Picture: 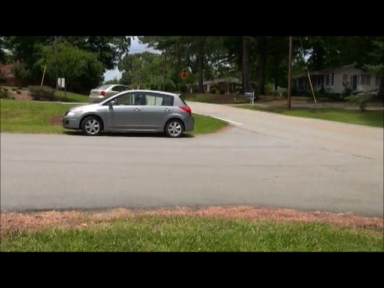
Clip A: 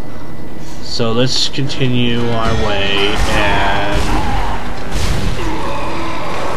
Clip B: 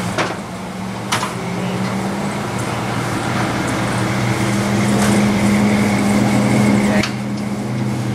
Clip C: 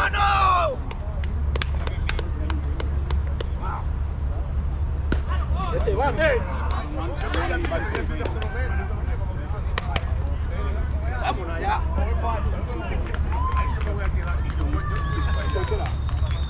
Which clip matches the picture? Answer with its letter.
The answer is B